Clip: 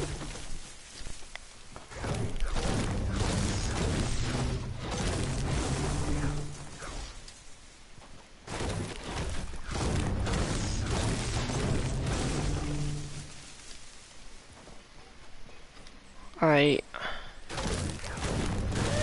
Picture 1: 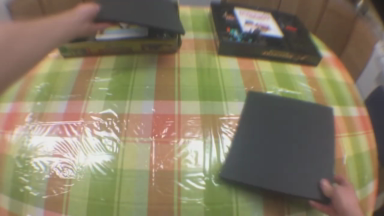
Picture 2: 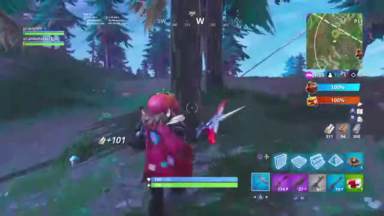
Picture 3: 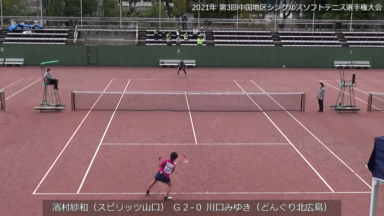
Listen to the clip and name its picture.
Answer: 2